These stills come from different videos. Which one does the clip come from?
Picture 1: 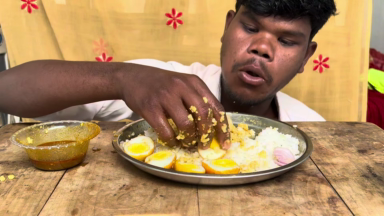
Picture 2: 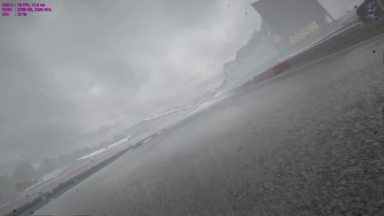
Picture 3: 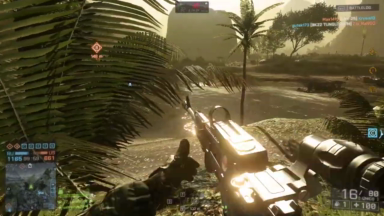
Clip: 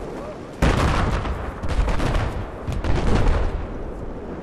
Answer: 3